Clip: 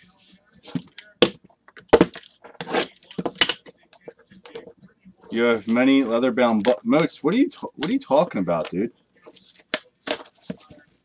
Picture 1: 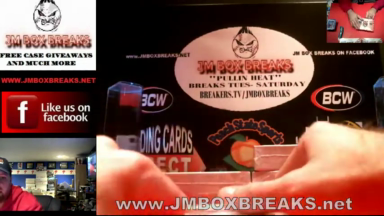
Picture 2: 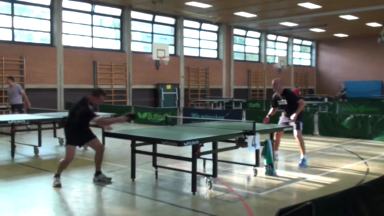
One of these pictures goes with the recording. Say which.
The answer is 1